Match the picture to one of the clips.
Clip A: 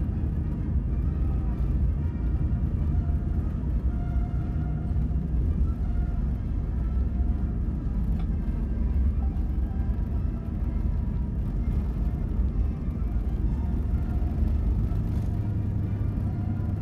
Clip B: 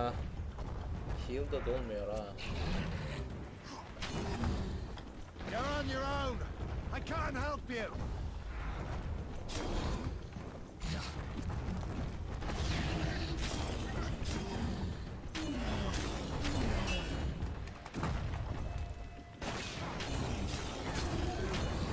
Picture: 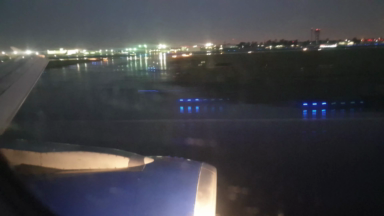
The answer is A